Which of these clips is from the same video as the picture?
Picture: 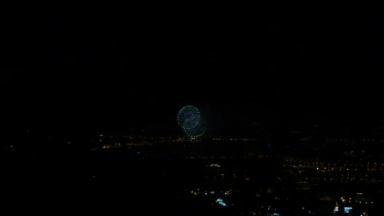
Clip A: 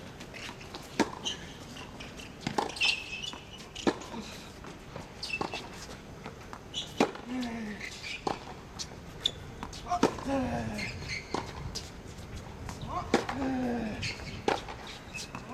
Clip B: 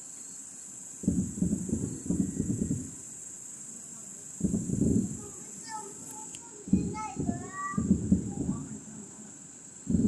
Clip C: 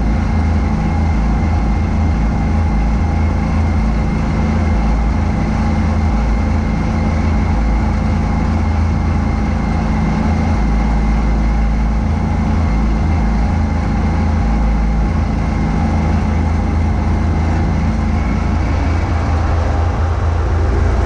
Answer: B